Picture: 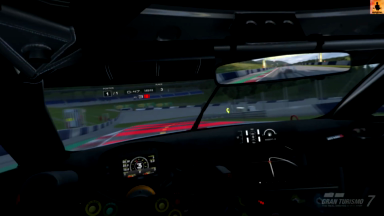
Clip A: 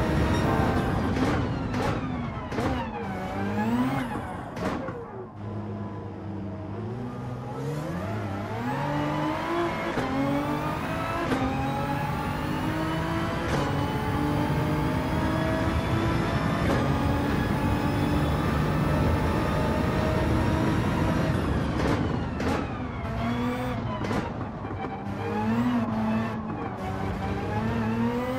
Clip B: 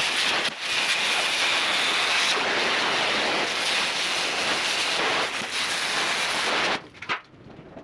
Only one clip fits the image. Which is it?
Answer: A